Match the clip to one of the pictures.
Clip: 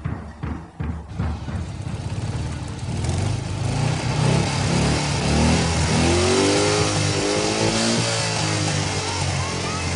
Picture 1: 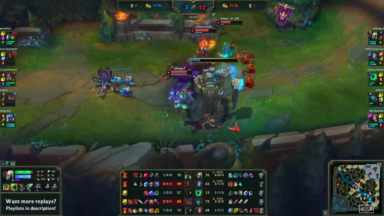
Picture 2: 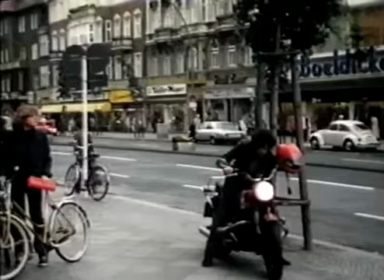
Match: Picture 2